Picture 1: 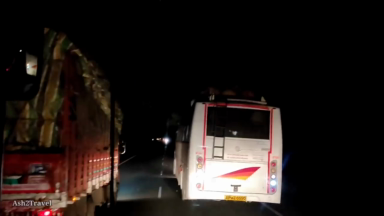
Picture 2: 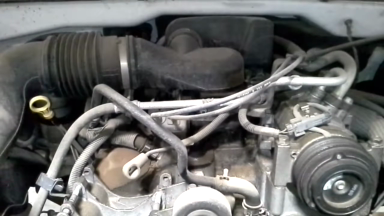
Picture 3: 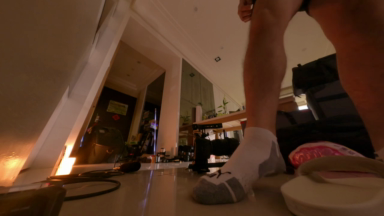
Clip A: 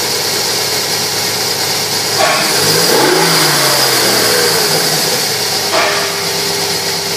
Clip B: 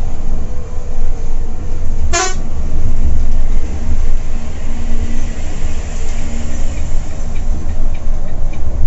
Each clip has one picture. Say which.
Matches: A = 2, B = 1